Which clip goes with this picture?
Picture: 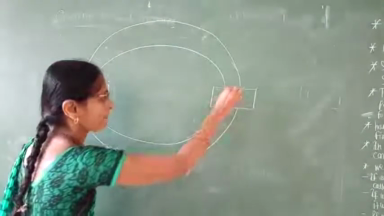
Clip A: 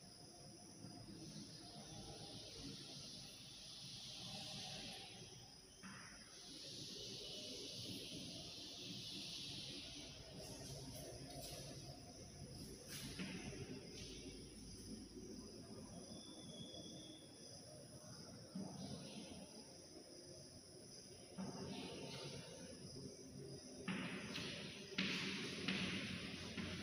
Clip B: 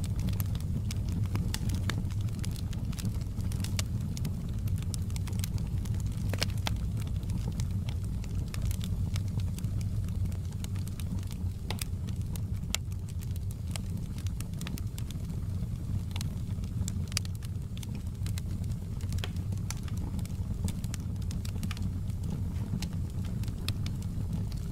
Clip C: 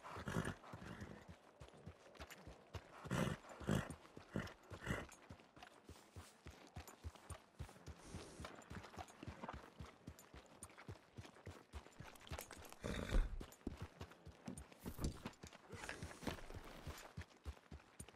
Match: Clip A